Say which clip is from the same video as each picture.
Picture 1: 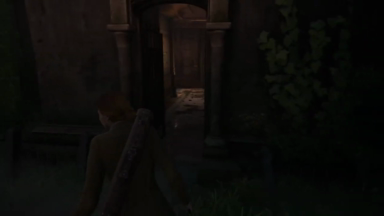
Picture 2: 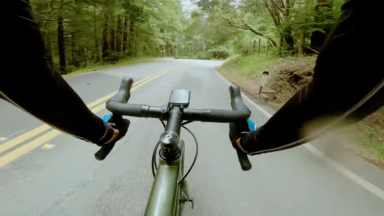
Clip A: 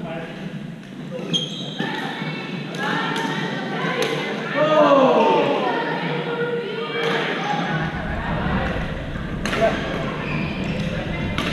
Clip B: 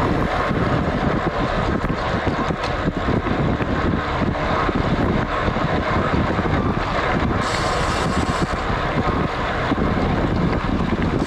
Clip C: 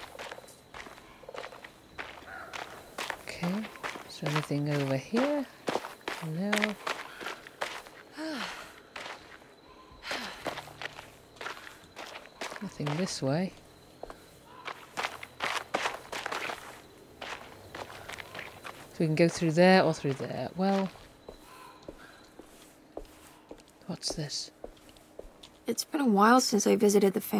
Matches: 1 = C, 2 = B